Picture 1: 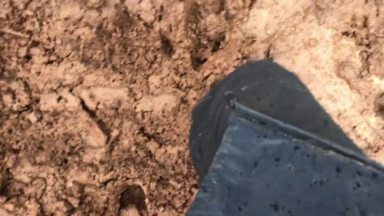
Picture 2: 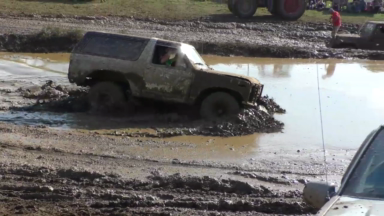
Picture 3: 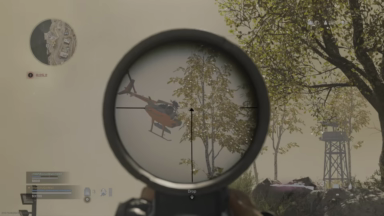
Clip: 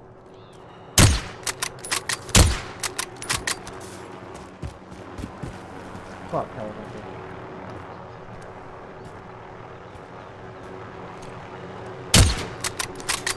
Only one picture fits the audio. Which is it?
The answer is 3